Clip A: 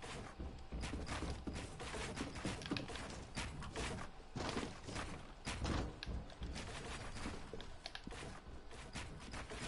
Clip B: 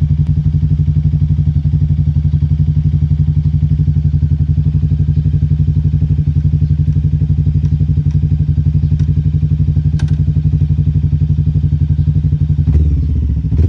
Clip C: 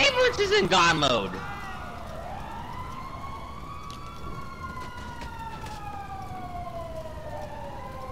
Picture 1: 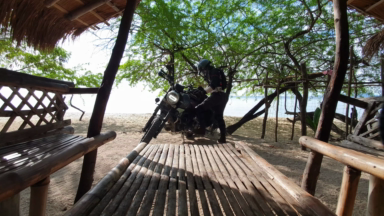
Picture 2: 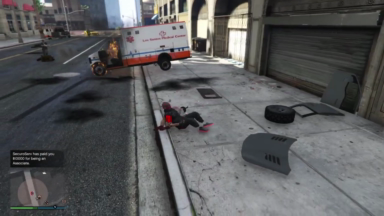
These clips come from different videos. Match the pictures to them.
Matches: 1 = B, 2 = C